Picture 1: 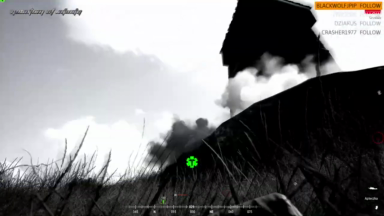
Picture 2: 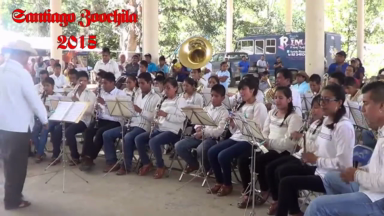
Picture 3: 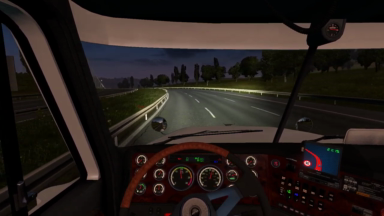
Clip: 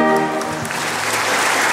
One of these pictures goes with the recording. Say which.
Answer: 2